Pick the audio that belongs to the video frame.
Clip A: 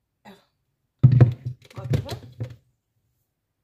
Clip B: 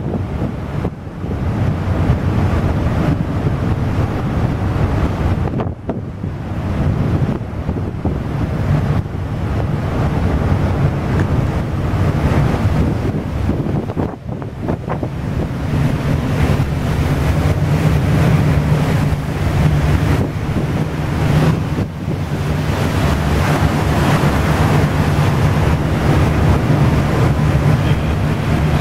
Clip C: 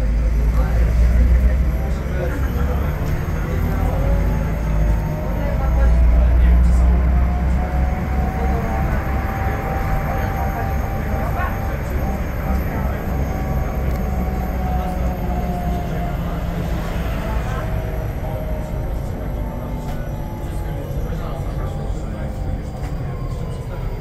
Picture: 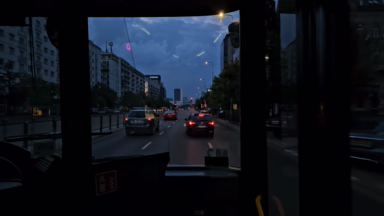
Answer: C